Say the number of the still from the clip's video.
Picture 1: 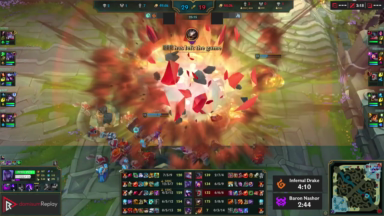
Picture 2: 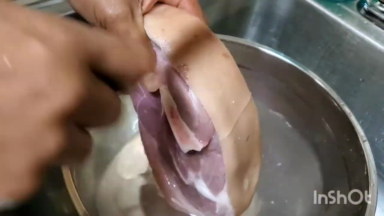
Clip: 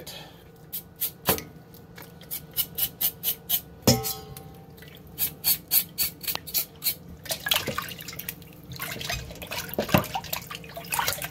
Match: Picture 2